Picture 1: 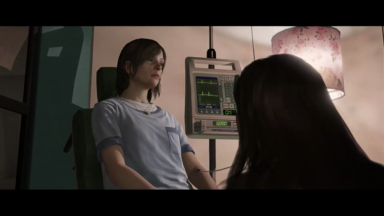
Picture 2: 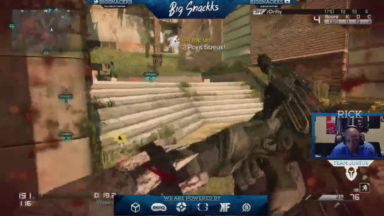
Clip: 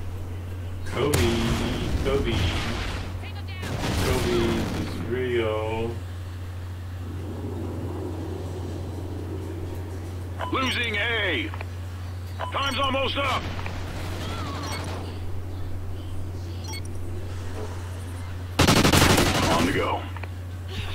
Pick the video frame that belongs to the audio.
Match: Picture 2